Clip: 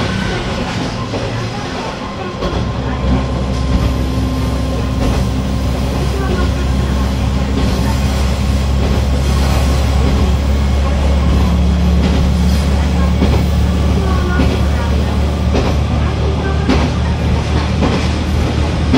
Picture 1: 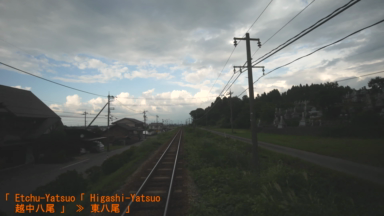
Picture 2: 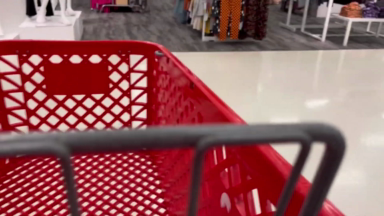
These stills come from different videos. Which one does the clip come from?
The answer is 1